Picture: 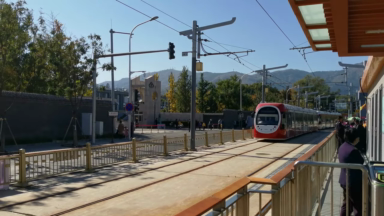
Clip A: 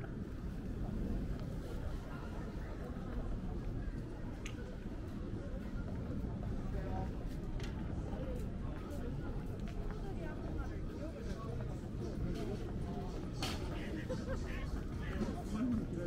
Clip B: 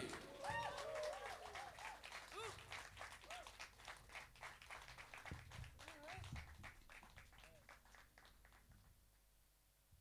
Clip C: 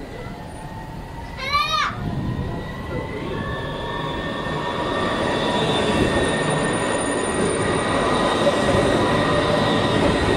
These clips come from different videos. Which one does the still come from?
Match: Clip C